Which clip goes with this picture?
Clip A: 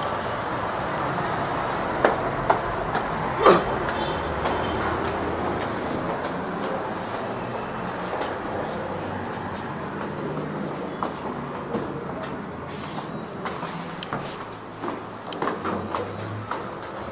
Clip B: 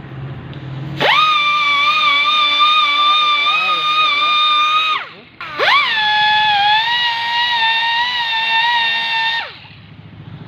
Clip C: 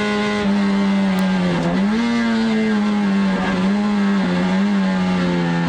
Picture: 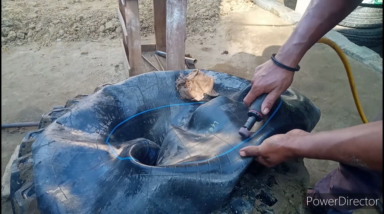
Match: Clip B